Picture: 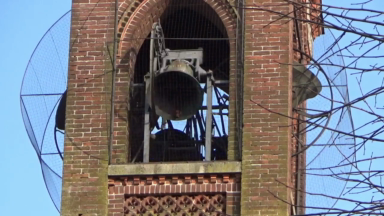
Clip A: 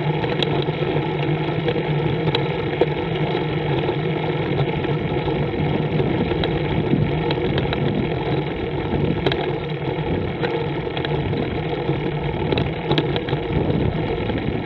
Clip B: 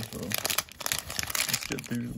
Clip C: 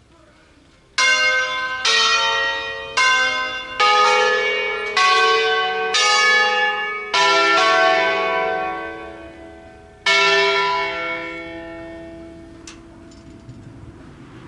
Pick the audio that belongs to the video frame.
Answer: C